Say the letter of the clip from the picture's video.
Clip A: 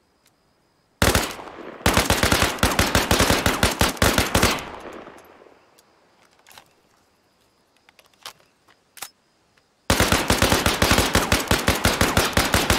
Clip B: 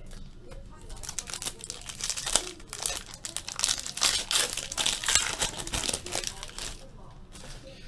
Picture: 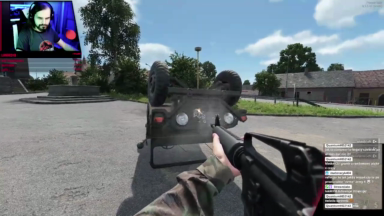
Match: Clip A